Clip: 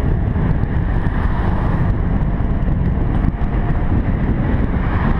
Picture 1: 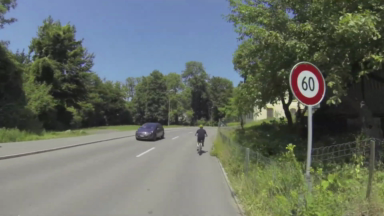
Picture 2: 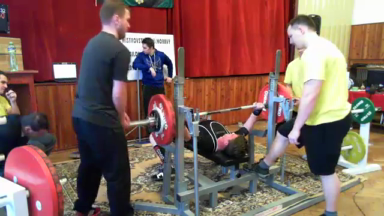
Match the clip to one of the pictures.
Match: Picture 1